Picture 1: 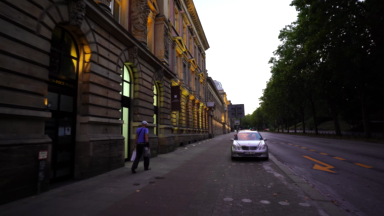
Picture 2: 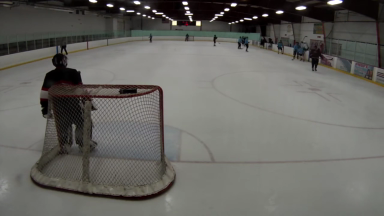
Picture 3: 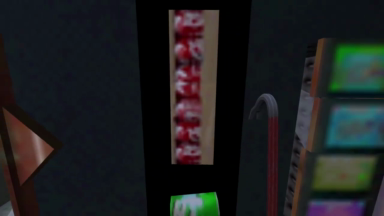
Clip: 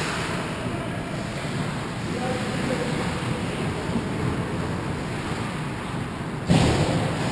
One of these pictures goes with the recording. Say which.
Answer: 2